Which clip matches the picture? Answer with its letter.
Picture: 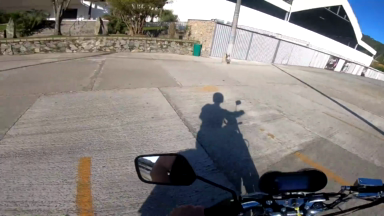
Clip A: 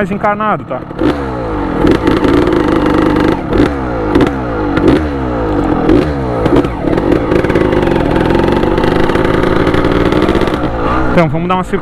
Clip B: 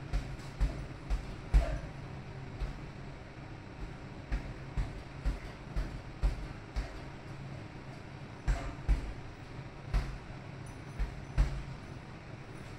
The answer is A